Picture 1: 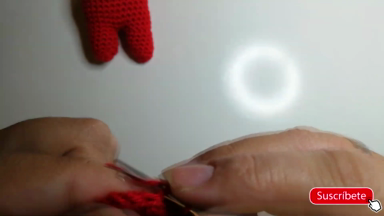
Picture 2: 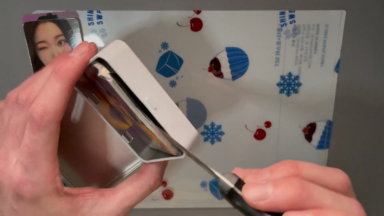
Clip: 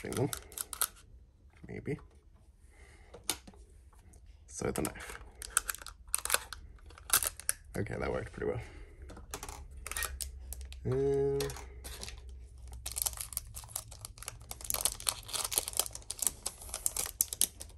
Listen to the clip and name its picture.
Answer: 2